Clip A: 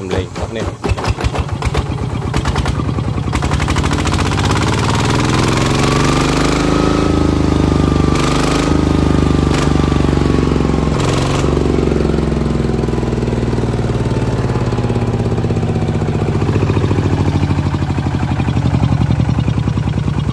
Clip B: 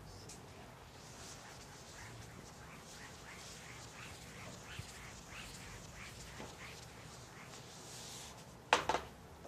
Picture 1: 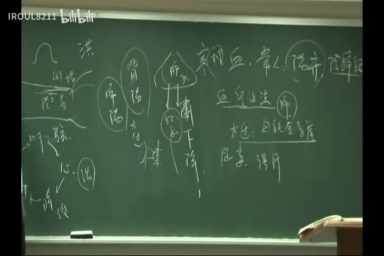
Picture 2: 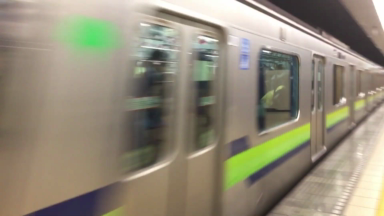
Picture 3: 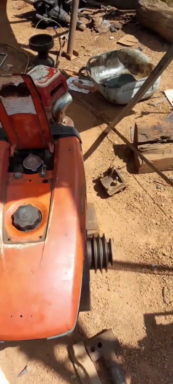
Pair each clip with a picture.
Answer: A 3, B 1